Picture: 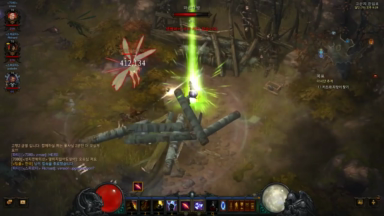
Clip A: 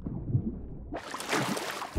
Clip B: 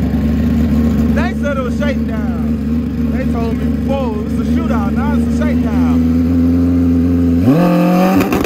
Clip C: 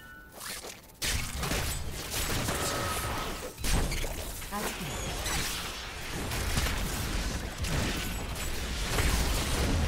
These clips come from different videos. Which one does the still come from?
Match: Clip C